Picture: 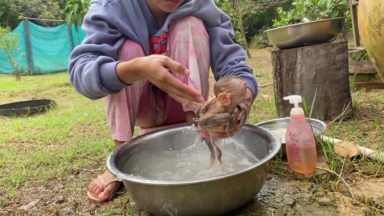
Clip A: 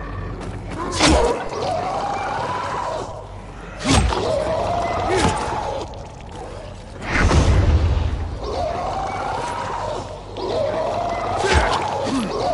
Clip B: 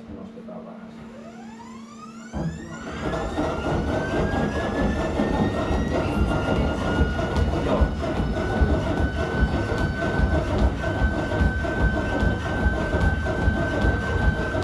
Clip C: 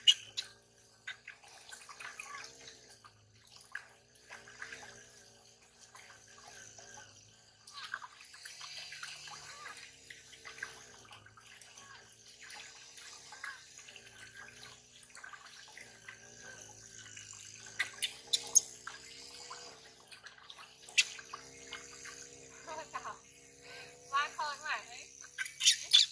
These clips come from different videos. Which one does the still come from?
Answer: C